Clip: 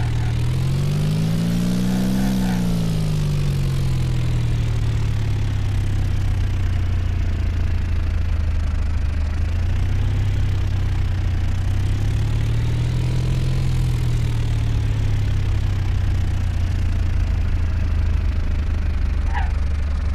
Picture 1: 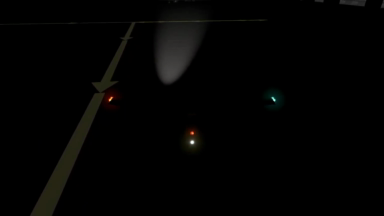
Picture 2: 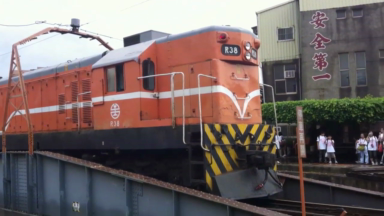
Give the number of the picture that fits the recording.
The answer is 1